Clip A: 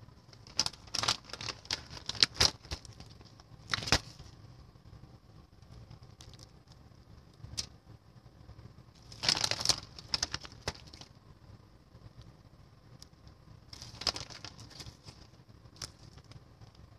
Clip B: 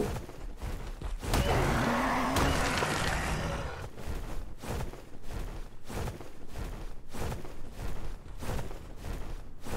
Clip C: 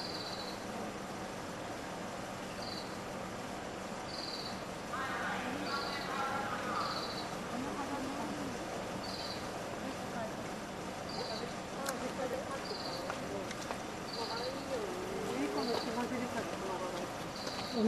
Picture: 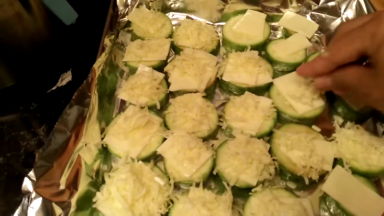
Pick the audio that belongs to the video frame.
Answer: A